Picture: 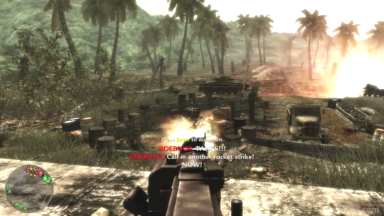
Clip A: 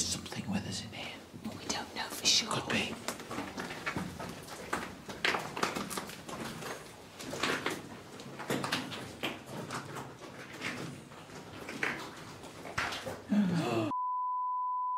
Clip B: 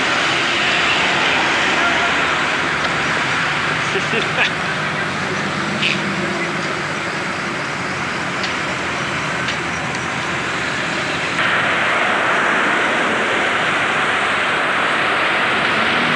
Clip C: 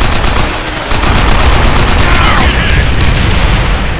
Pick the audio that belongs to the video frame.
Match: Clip C